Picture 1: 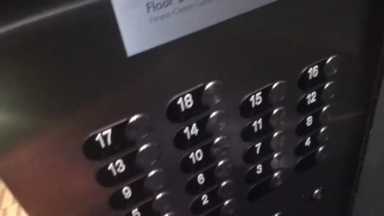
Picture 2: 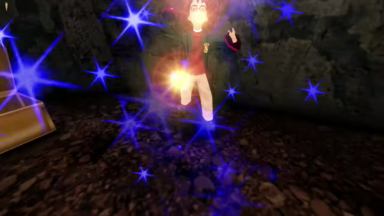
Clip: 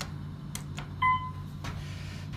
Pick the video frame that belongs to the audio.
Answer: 1